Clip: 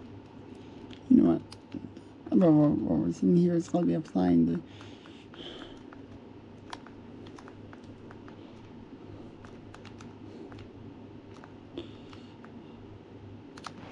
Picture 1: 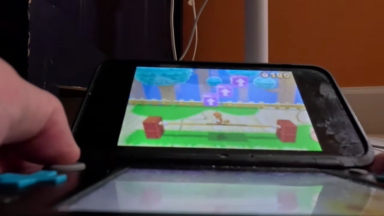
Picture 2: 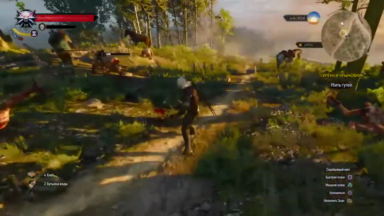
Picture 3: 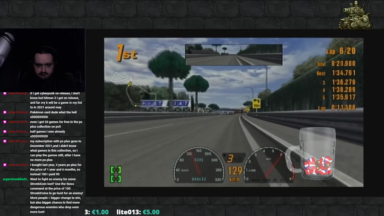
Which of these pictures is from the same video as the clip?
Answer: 1